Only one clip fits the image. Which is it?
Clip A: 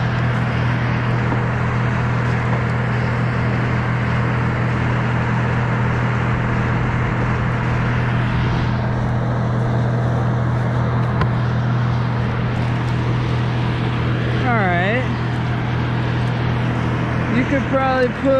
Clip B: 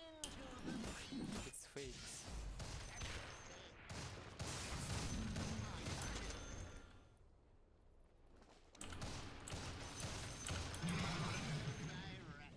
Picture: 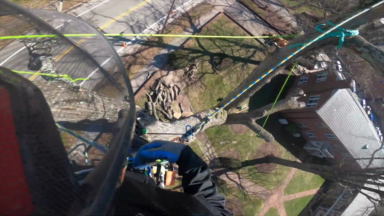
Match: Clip A